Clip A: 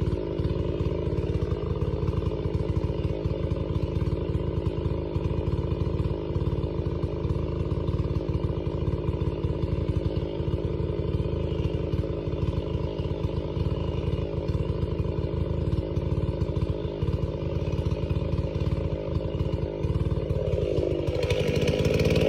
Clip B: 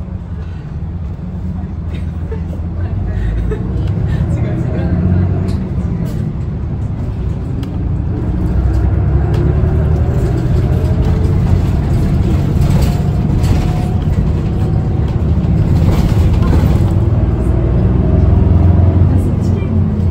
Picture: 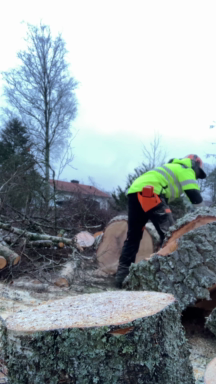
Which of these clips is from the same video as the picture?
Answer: A